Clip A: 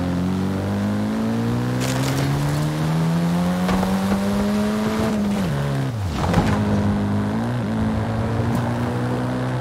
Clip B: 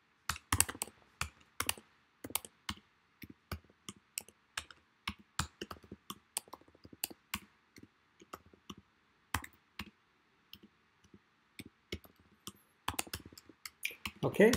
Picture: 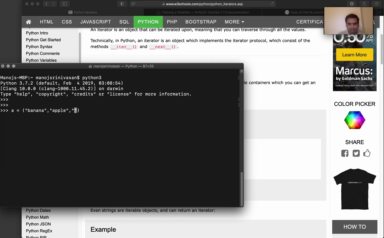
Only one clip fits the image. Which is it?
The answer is B